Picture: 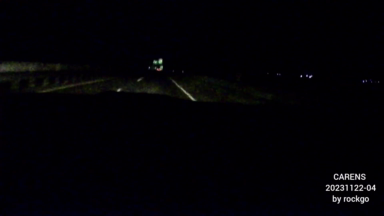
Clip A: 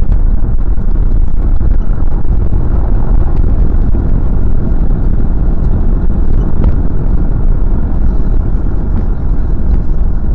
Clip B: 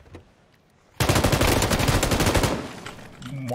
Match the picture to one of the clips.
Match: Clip A